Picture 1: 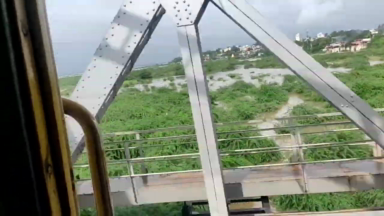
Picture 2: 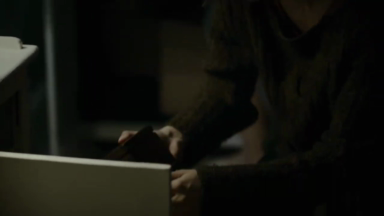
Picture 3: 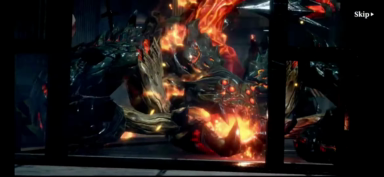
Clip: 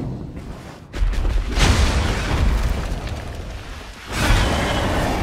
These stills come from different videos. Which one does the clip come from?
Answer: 3